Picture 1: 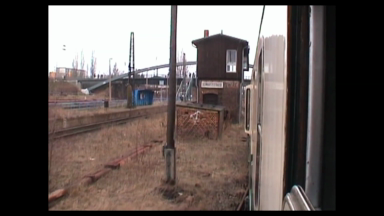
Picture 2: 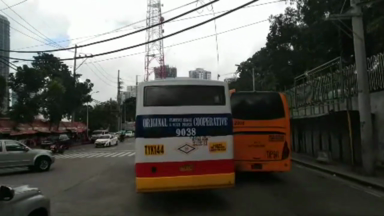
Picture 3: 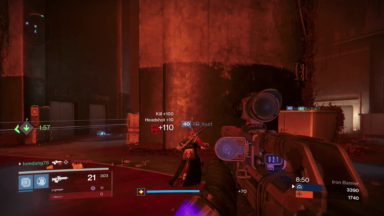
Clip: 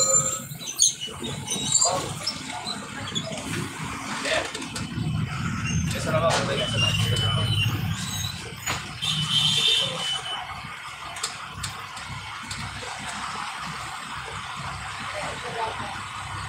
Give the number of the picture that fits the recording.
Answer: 2